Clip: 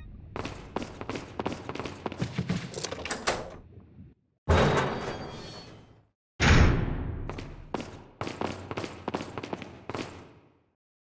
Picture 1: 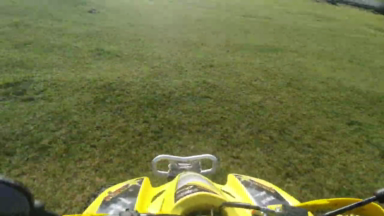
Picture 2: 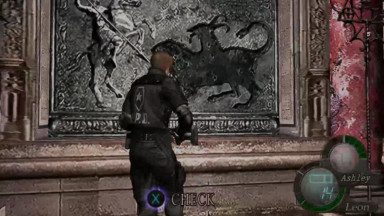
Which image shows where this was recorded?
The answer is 2